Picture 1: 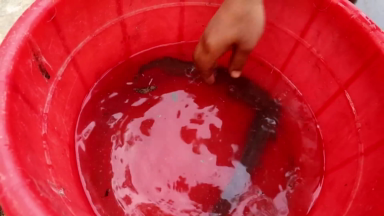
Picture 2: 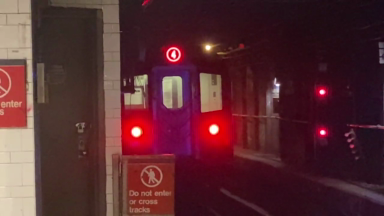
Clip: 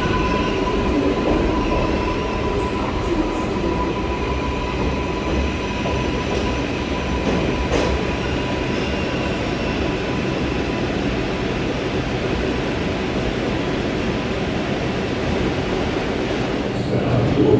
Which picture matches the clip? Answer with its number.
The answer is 2